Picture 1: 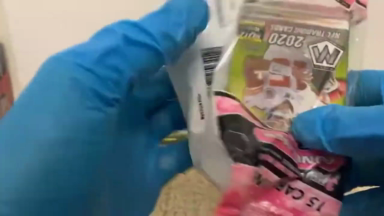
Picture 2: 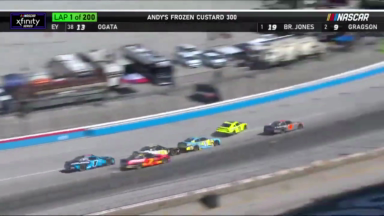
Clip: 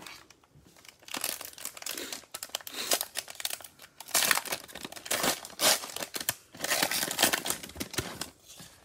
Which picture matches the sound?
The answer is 1